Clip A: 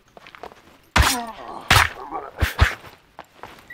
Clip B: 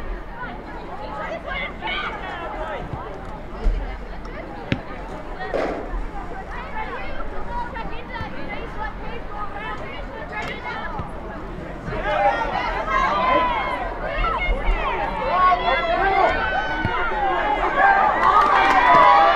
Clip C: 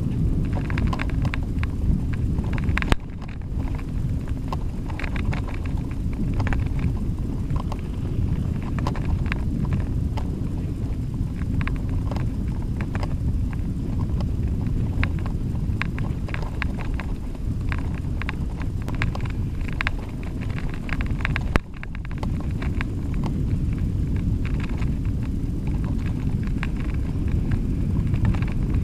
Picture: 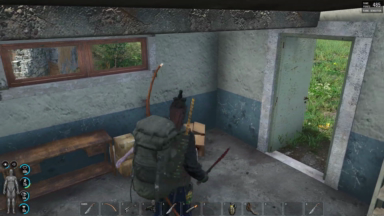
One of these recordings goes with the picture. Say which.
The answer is A